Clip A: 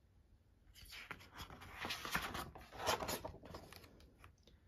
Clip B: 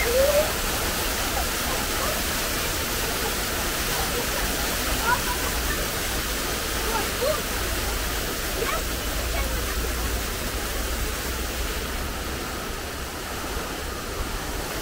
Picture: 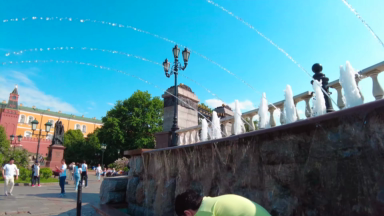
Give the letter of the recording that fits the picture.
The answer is B